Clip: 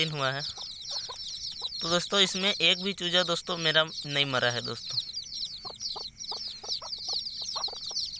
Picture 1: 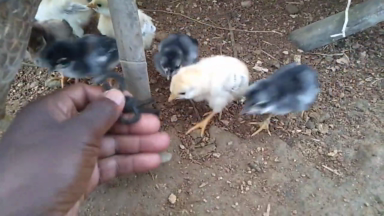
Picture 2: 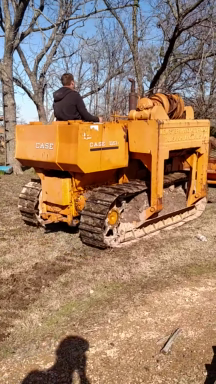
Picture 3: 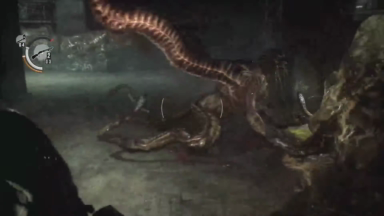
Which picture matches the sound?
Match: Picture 1